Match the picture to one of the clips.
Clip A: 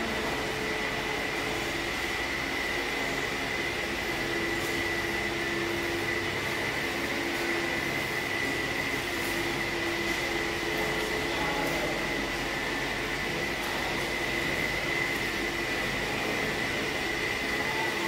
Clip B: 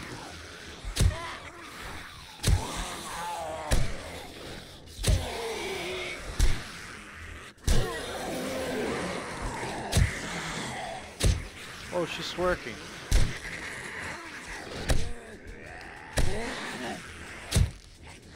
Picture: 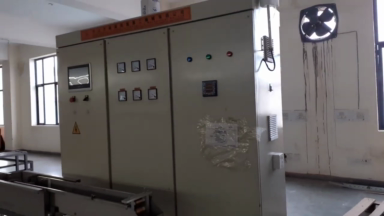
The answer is A